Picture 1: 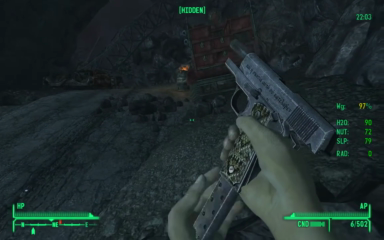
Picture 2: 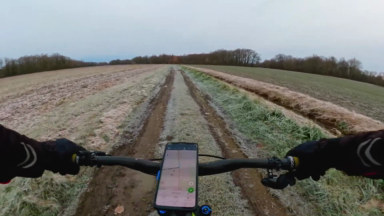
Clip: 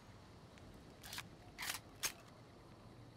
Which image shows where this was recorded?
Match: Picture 1